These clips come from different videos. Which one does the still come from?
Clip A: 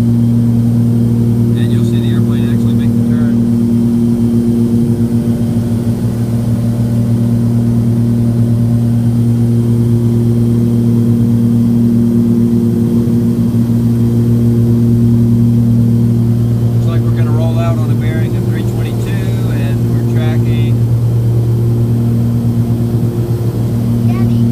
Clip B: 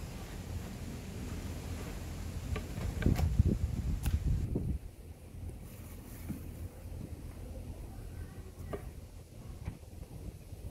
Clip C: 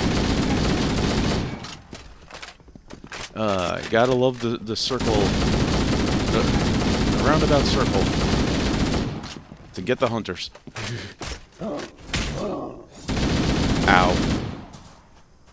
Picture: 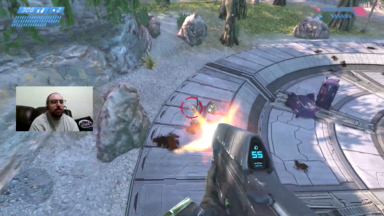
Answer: C